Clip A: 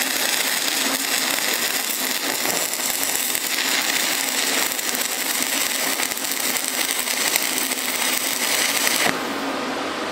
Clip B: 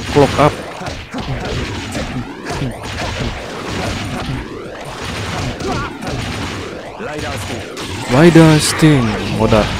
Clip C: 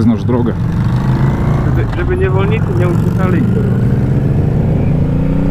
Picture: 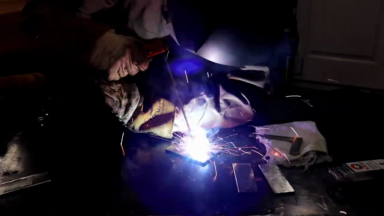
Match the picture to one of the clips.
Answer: A